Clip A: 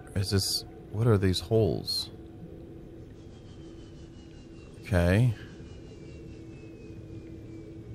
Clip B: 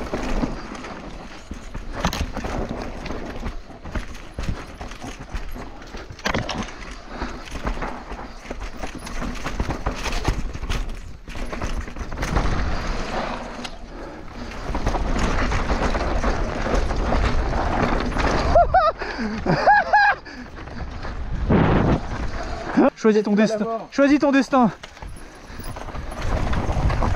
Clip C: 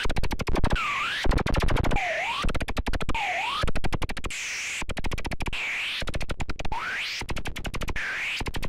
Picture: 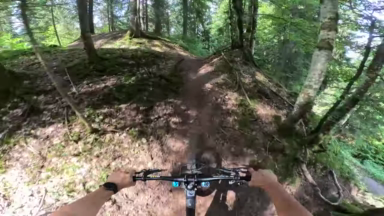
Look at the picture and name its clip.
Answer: B